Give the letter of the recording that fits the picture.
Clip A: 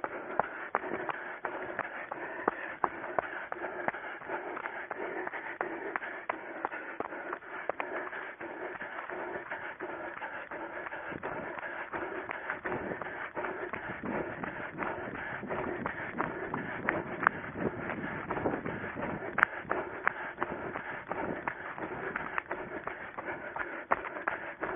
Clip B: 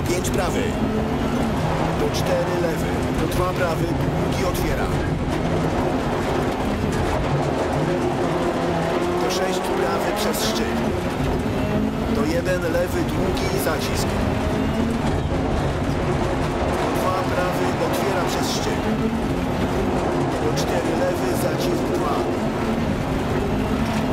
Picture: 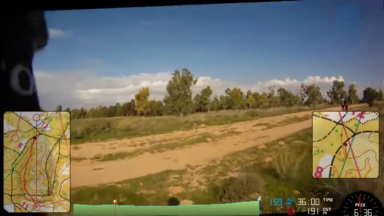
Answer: A